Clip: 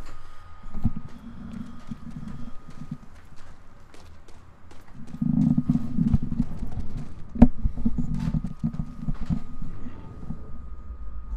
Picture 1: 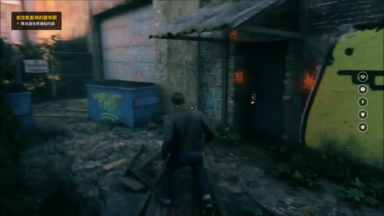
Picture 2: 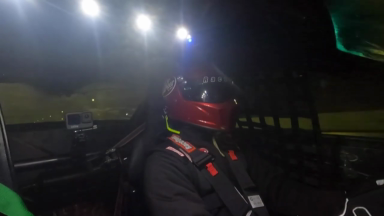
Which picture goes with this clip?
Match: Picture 1